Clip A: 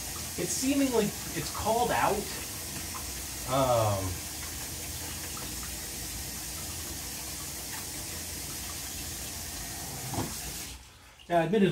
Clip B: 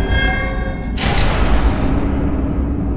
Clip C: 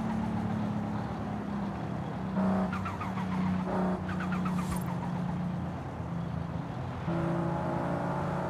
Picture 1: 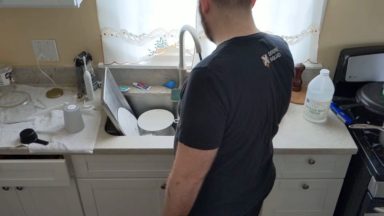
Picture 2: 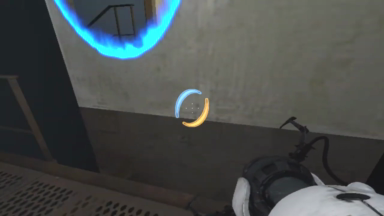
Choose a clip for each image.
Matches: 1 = A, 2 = B